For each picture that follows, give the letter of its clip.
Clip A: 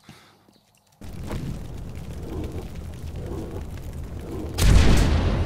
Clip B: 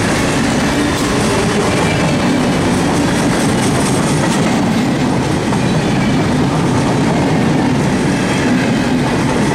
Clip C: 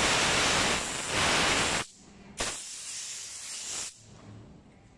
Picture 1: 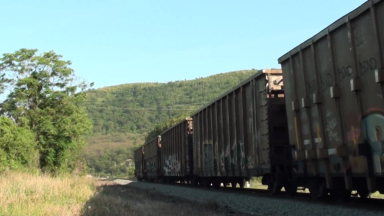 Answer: B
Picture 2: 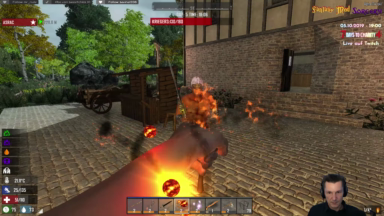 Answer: A